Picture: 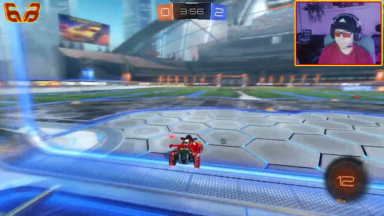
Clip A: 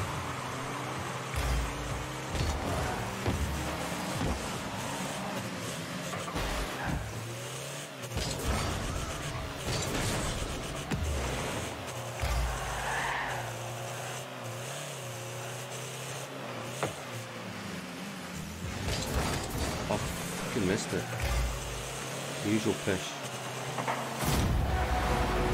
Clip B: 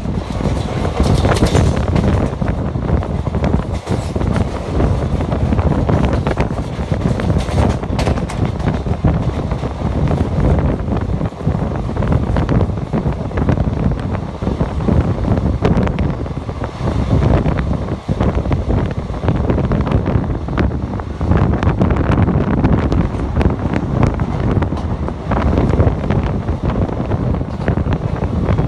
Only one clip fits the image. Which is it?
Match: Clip A